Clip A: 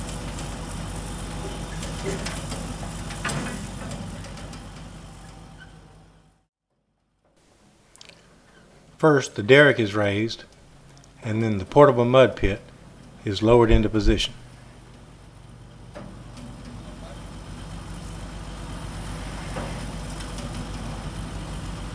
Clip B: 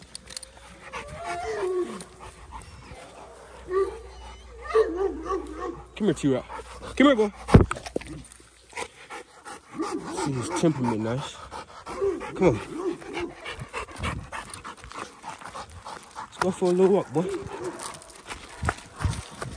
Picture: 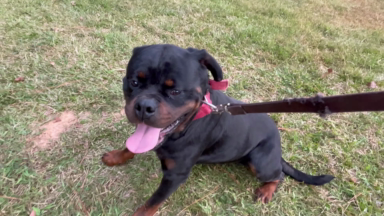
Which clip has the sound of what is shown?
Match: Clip B